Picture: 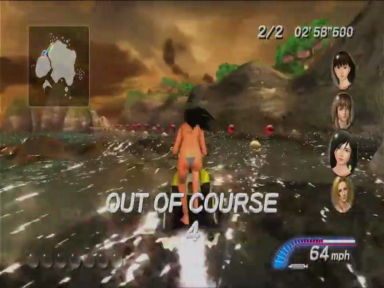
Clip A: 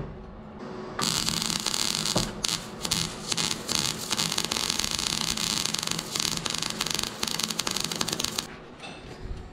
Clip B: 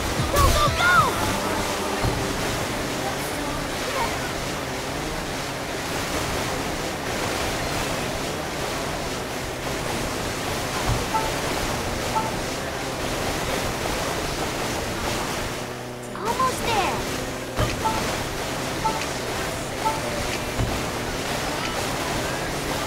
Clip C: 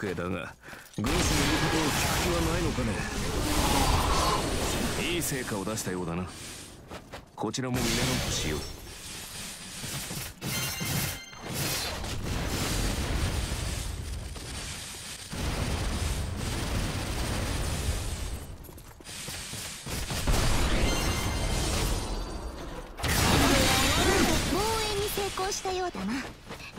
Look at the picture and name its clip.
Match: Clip B